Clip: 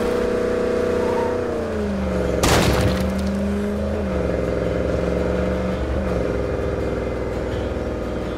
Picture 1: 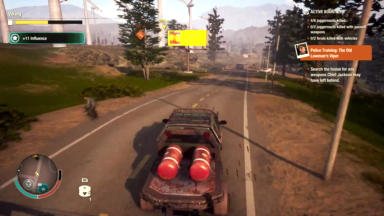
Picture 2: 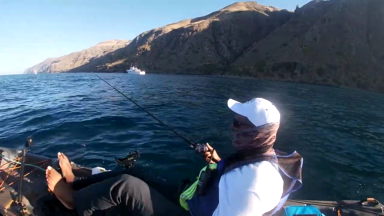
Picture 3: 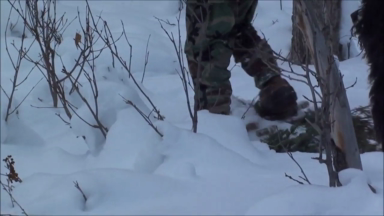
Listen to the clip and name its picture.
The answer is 1